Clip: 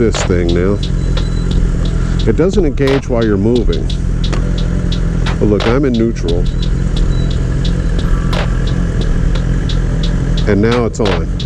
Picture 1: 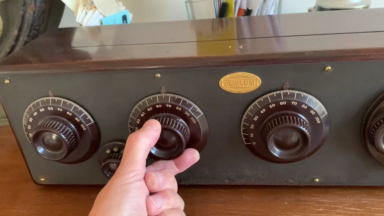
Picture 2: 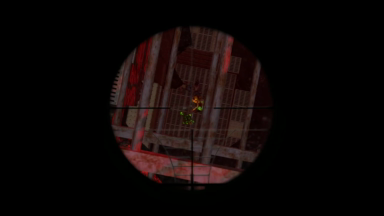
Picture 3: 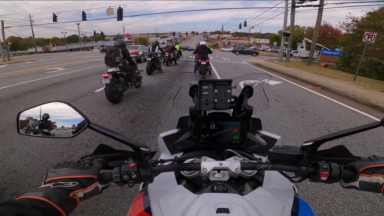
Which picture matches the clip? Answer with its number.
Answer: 3